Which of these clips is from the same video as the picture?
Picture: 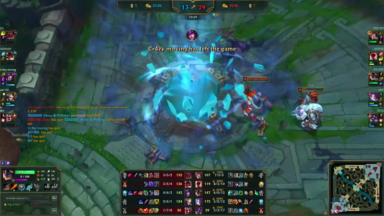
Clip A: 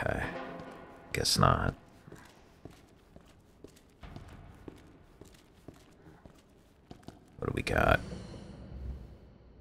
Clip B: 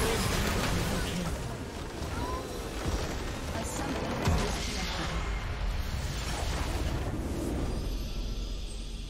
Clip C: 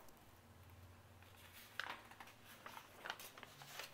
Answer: B